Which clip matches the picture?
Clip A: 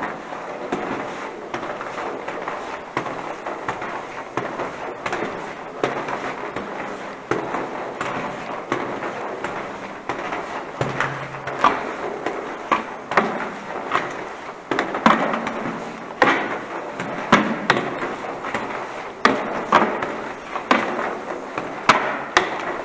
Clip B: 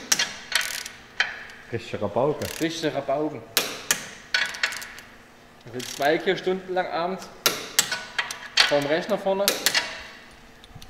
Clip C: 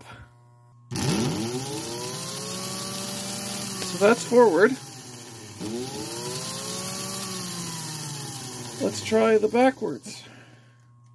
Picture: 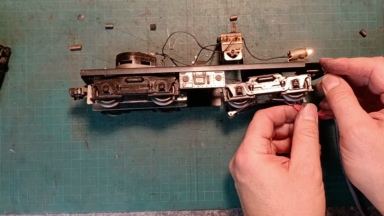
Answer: C